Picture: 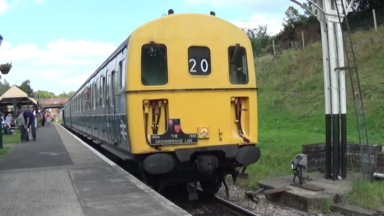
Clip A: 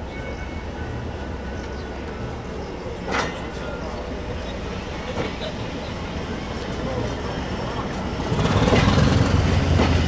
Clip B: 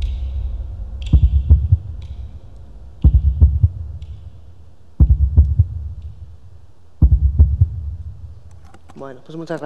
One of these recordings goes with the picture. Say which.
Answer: A